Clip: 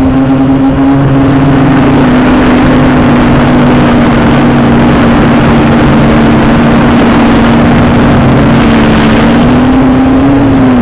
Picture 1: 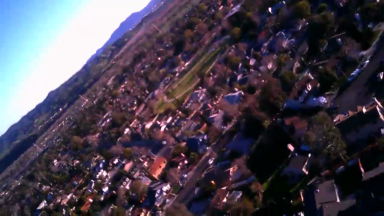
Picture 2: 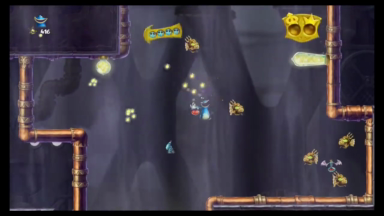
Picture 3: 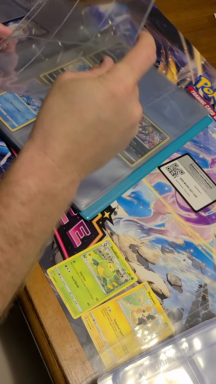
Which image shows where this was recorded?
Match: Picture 1